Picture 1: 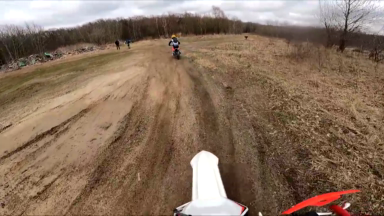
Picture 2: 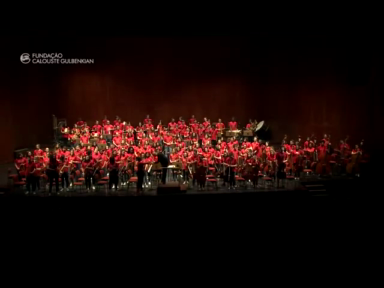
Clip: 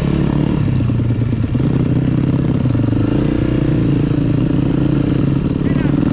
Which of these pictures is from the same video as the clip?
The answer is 1